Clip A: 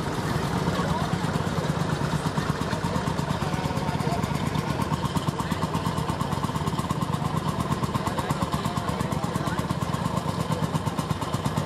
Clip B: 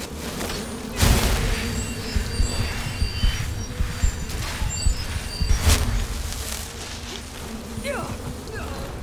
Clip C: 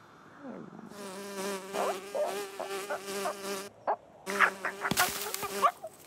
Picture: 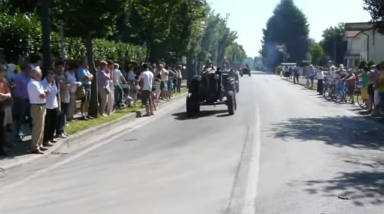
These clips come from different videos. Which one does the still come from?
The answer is A